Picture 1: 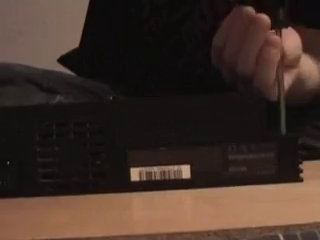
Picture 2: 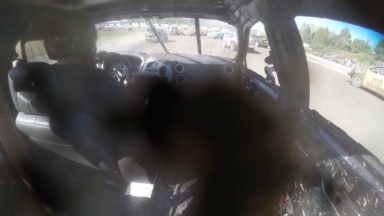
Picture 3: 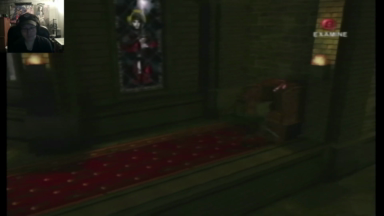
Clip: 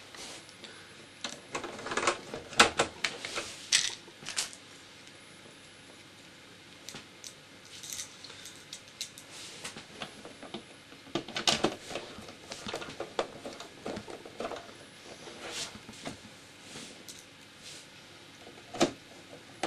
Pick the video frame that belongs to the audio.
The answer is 1